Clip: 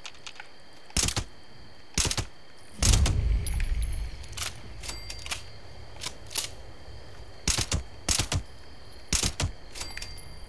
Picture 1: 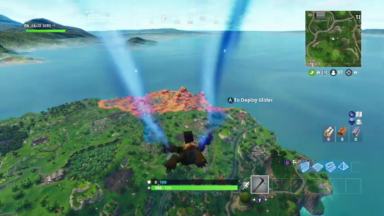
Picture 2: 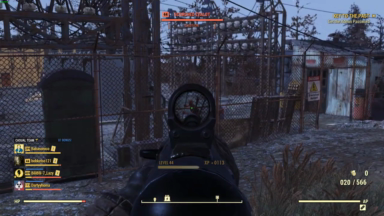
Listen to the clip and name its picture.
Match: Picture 2